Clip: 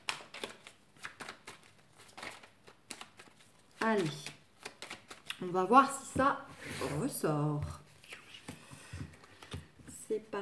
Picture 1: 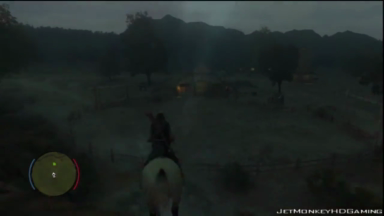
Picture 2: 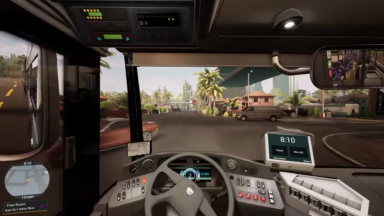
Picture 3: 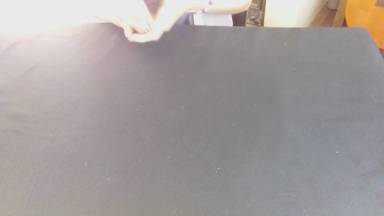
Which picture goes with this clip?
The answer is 3